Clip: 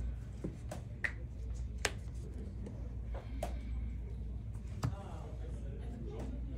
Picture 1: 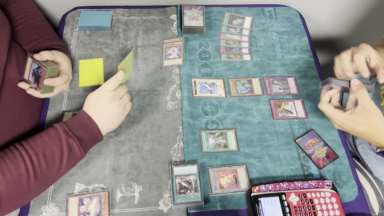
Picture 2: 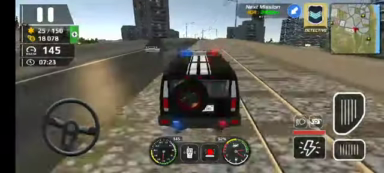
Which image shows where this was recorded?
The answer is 1